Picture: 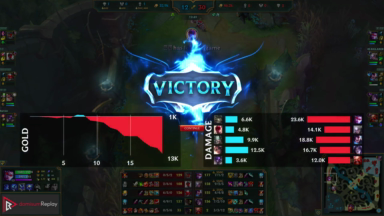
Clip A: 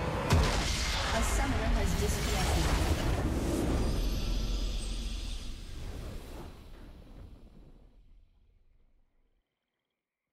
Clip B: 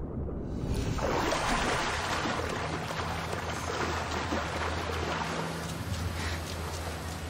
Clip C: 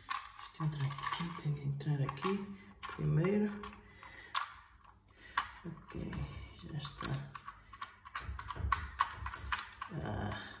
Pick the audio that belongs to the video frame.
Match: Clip A